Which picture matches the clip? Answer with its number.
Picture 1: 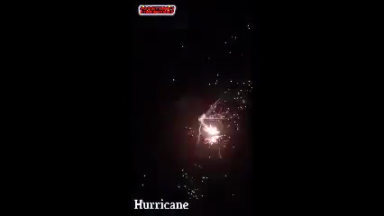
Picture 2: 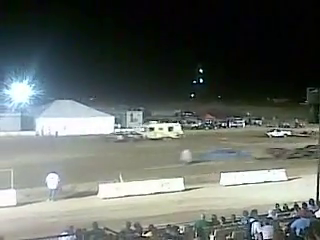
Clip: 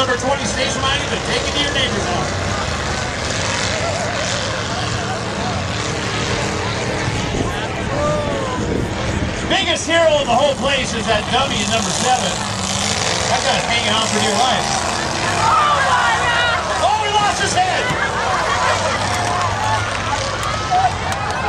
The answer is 2